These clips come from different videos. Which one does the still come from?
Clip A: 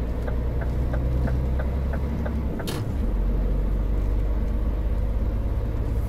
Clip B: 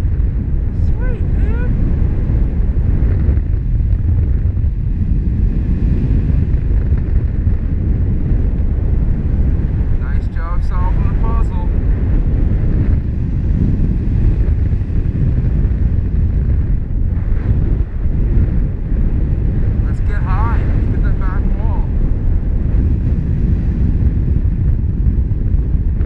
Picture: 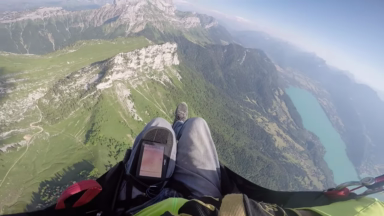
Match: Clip B